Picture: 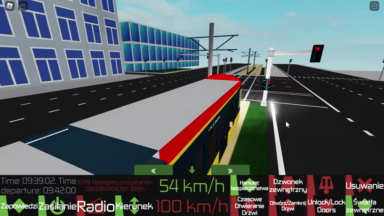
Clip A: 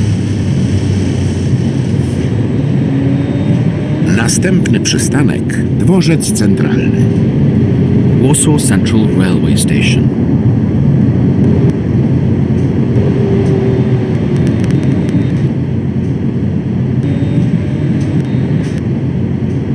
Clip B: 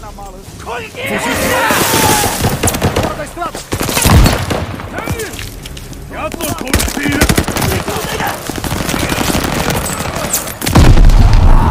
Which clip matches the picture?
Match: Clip A